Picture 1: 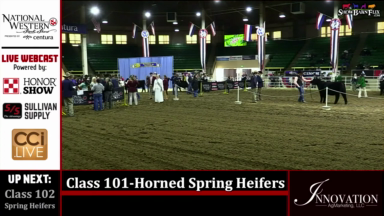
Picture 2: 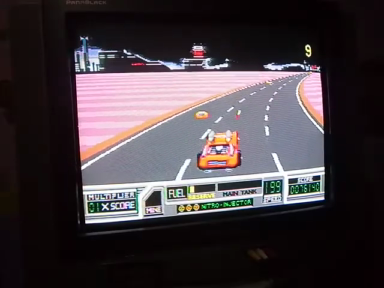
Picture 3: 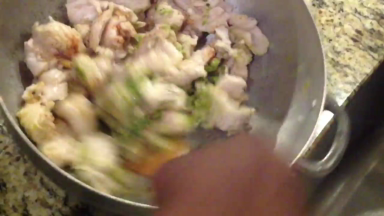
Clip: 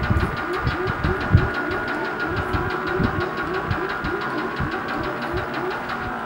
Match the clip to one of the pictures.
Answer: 2